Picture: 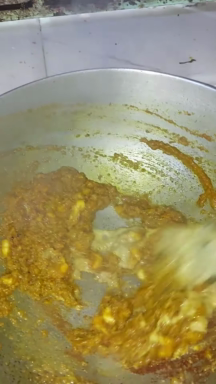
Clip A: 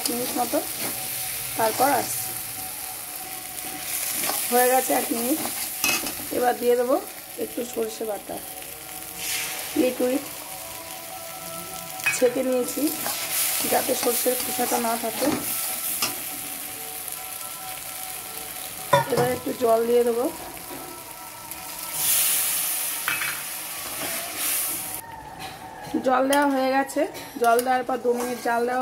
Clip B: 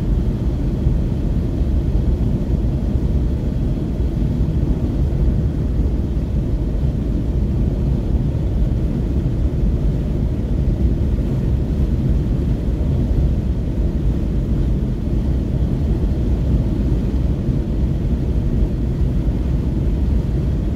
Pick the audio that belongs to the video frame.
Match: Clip A